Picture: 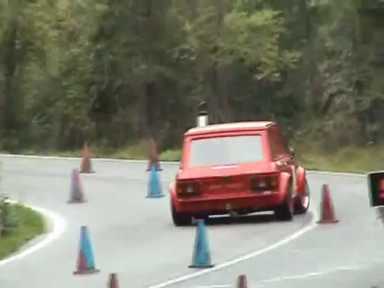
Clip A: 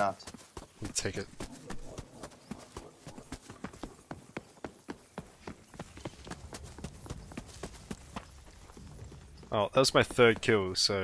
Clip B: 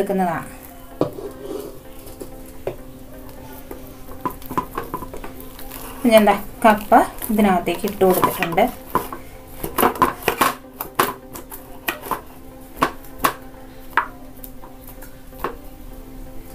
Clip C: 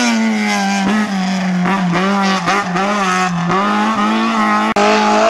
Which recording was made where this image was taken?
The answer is C